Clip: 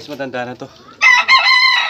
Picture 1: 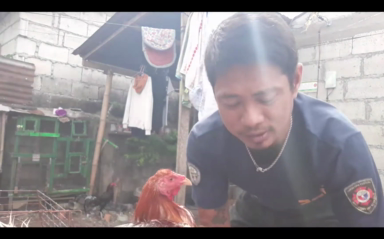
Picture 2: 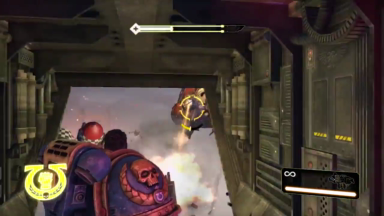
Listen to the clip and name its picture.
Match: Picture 1